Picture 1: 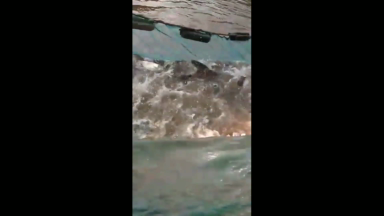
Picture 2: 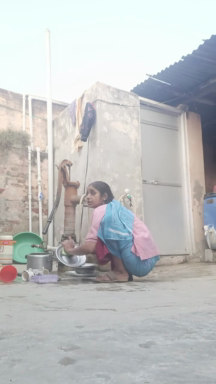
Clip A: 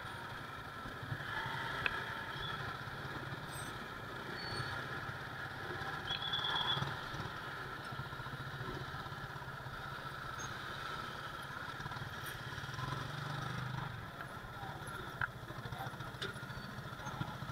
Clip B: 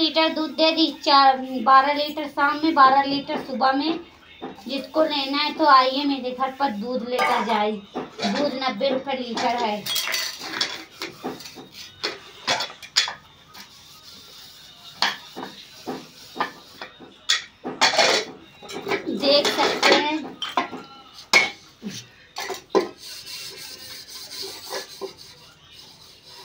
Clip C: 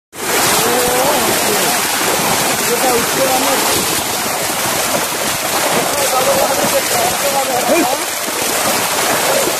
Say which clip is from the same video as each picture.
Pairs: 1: C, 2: B